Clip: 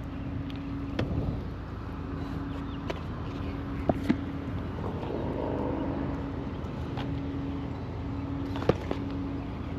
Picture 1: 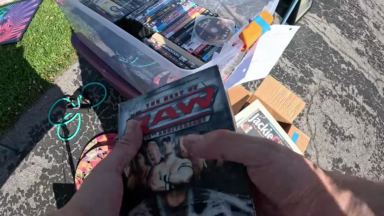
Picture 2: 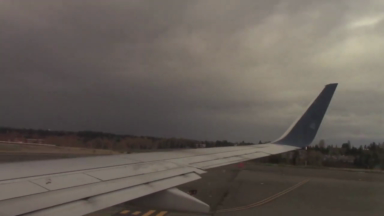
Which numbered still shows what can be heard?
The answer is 1